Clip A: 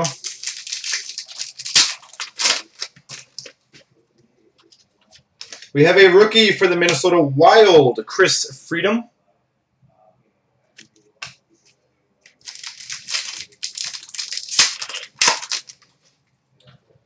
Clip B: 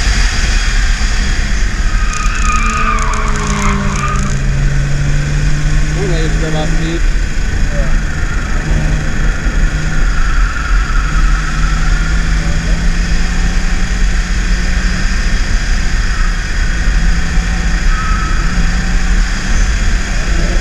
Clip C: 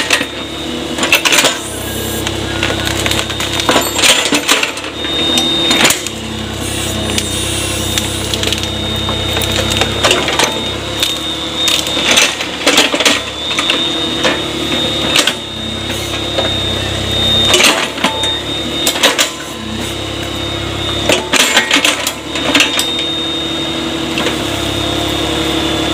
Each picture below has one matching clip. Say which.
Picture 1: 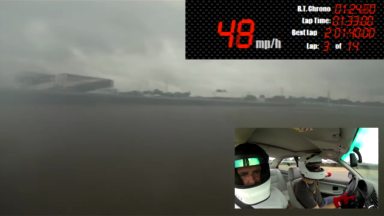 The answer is B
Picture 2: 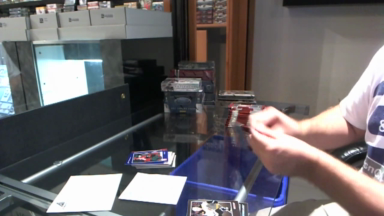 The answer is A